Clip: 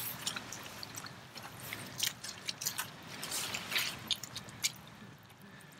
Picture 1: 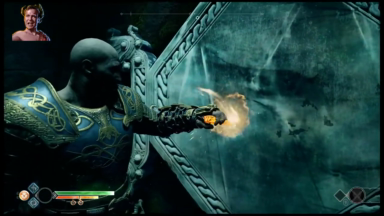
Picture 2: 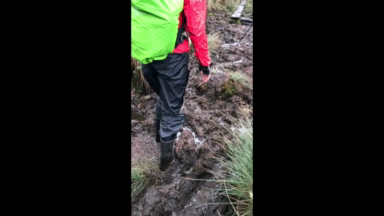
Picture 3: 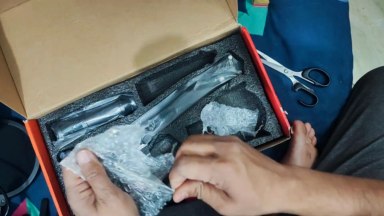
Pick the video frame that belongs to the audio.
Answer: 2